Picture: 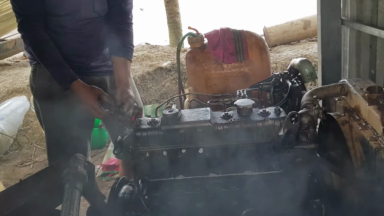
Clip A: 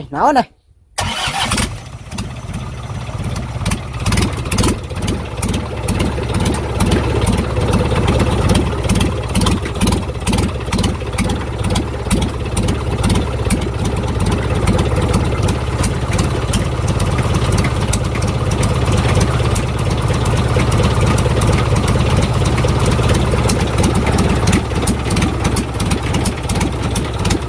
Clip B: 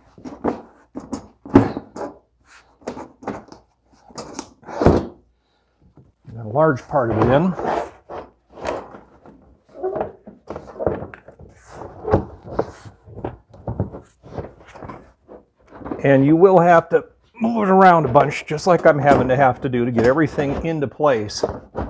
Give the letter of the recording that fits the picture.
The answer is A